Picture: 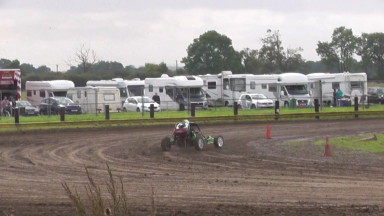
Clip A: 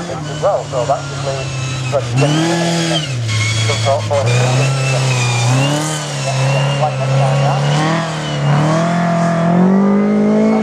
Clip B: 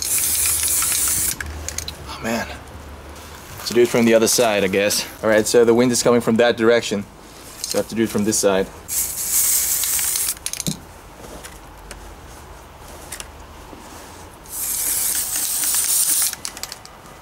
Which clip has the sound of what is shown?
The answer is A